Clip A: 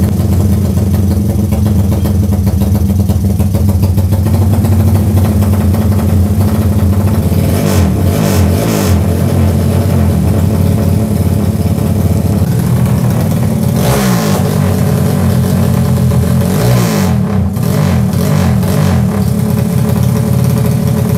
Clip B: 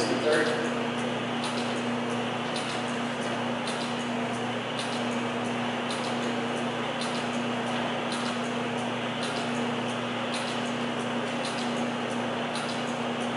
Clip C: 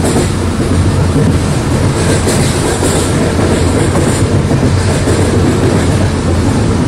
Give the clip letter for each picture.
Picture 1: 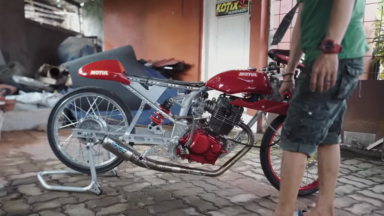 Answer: A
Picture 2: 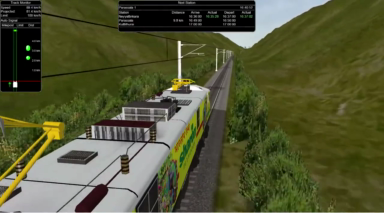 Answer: C